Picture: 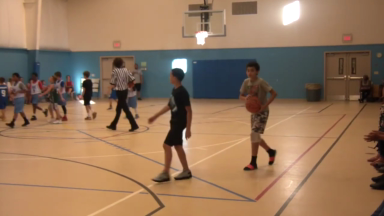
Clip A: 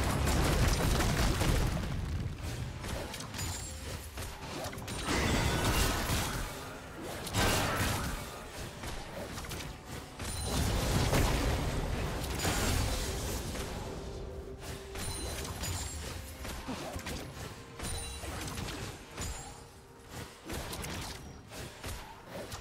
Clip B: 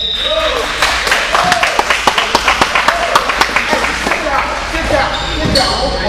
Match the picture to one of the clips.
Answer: B